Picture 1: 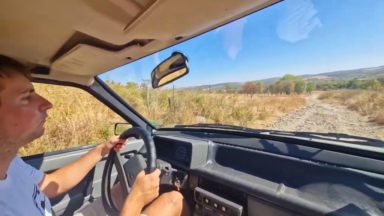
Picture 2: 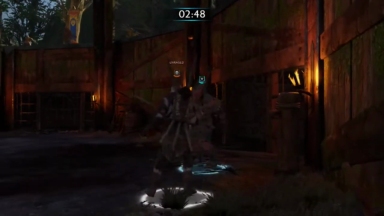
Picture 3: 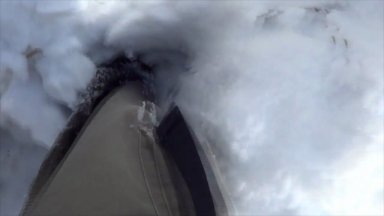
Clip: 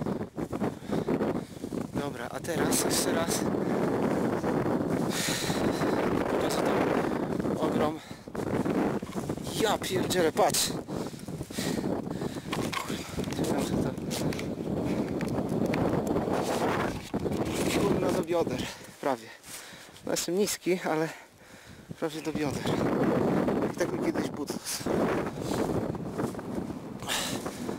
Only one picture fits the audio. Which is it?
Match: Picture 3